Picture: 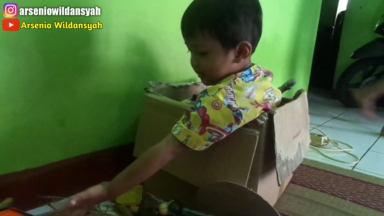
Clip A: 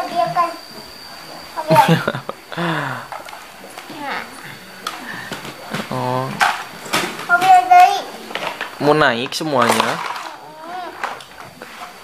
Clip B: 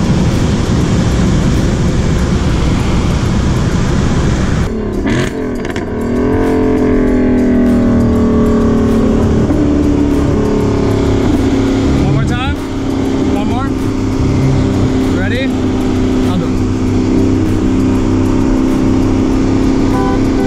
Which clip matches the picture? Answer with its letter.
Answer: A